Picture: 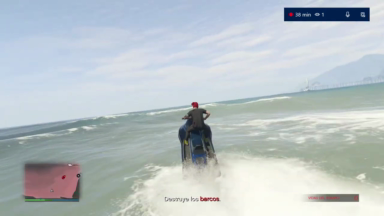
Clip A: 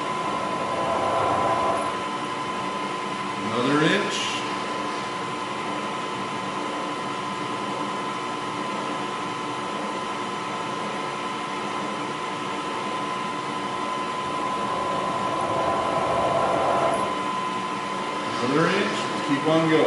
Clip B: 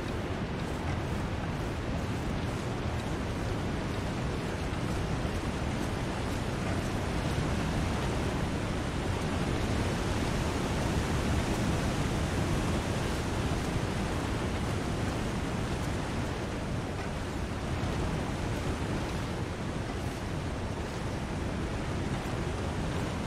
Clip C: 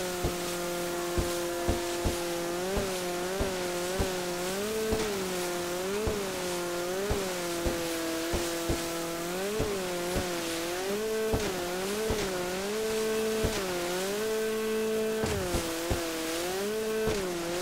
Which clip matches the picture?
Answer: C